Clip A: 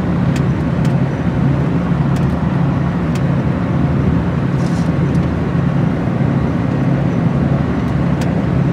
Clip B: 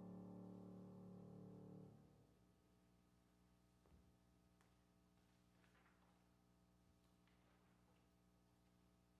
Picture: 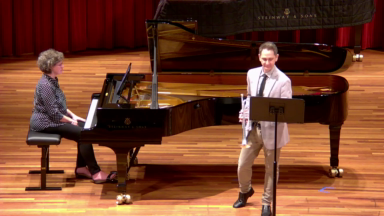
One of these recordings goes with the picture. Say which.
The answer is B